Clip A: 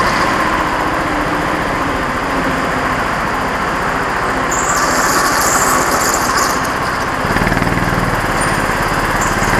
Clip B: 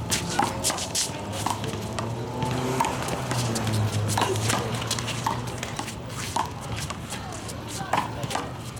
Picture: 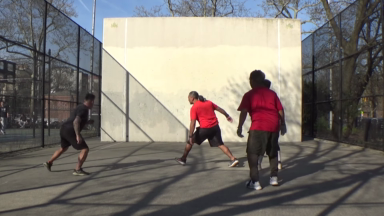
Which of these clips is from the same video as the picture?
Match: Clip B